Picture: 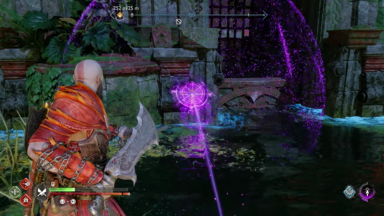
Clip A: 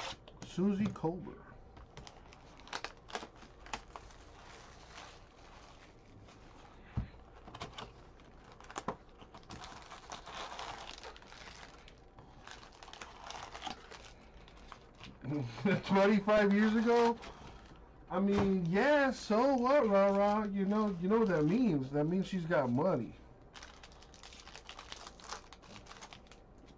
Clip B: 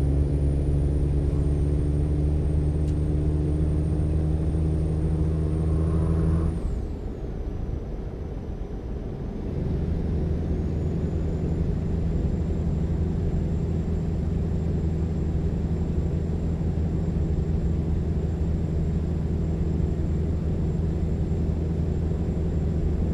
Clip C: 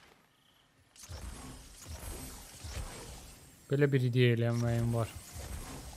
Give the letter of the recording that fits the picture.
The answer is C